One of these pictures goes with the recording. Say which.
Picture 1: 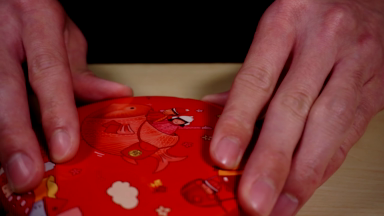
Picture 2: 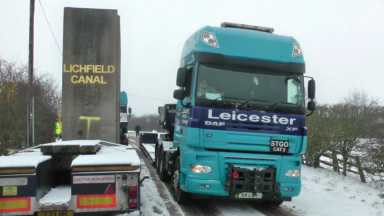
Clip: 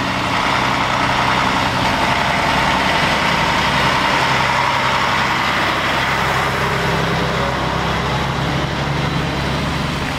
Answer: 2